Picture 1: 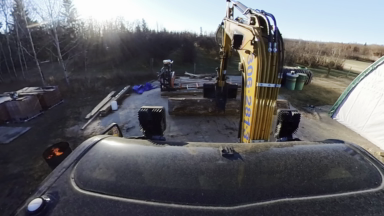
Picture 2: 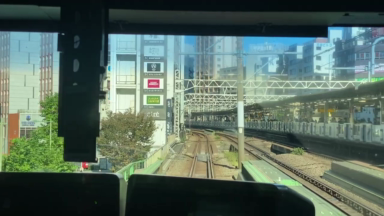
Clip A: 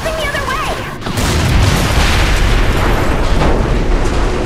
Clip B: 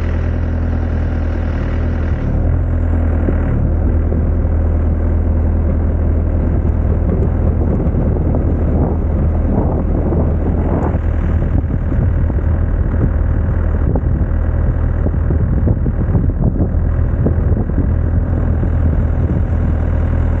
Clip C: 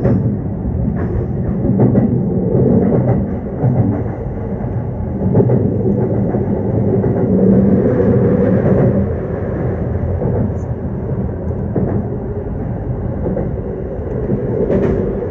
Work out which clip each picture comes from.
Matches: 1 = B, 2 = C